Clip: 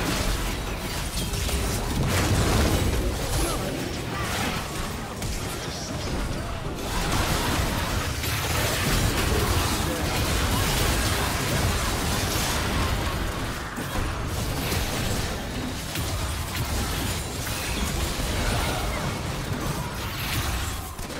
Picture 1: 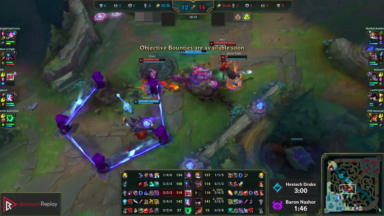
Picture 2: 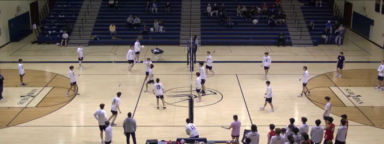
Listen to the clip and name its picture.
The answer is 1